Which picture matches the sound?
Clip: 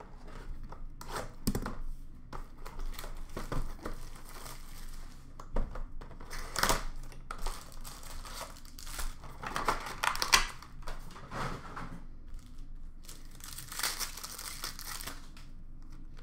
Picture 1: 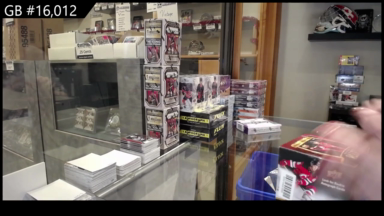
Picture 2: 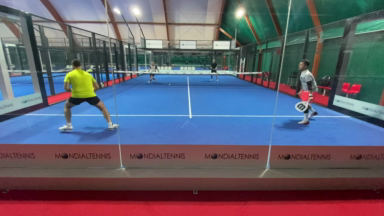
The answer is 1